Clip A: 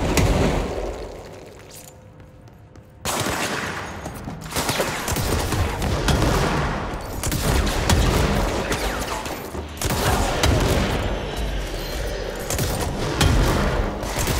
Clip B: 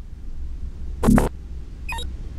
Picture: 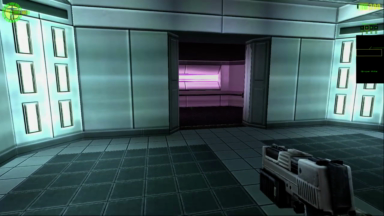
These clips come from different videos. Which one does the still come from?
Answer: B